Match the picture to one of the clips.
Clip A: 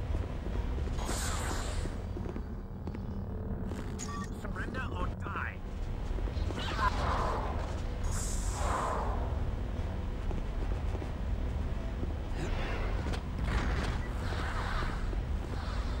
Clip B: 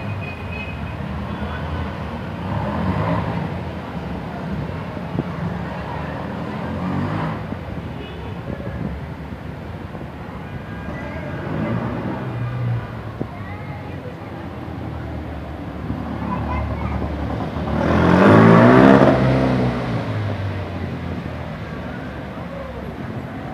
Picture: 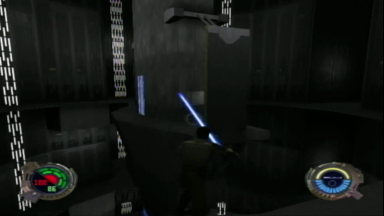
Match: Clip A